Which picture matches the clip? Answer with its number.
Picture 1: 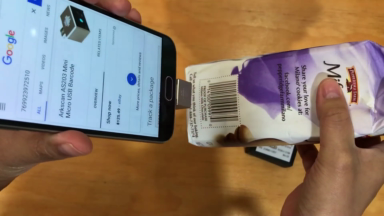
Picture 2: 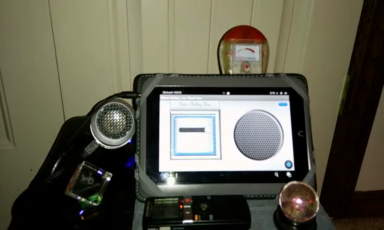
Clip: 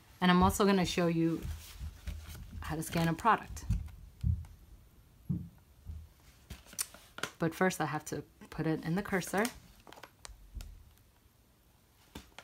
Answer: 1